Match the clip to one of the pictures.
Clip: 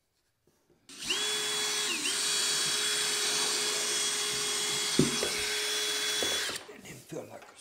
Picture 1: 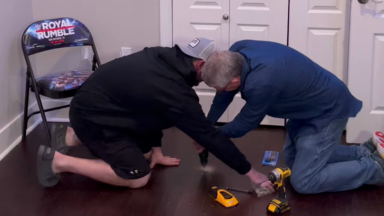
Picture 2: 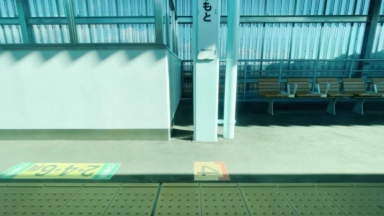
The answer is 1